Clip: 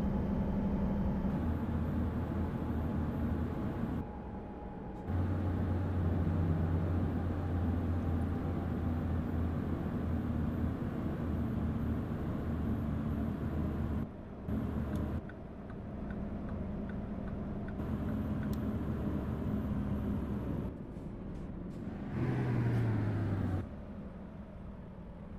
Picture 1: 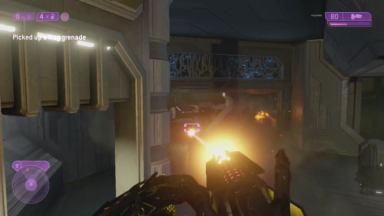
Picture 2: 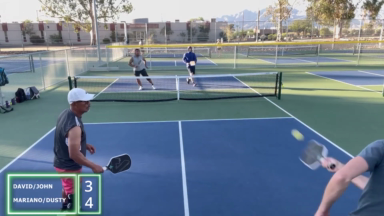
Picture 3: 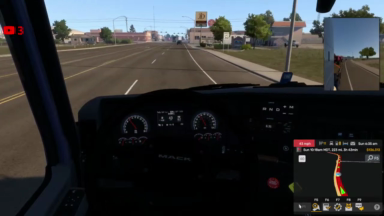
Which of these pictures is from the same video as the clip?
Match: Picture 3